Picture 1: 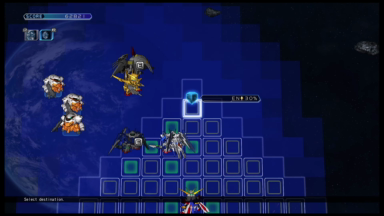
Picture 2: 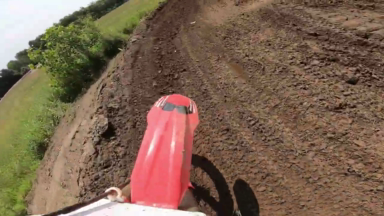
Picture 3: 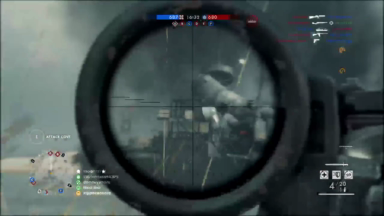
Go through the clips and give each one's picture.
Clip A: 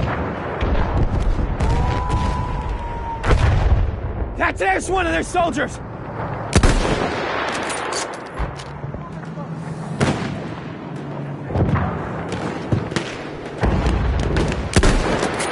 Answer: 3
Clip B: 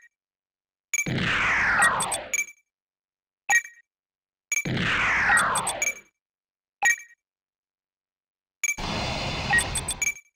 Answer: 1